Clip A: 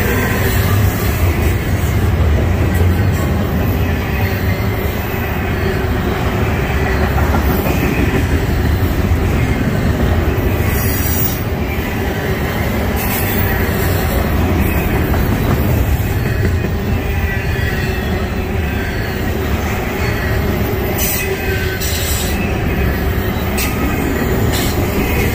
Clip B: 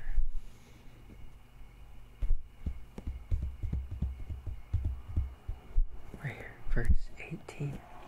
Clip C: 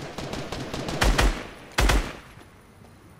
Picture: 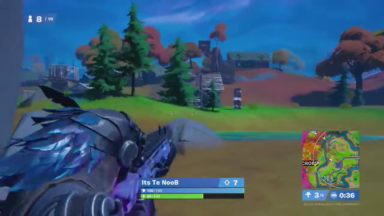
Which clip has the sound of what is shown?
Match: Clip C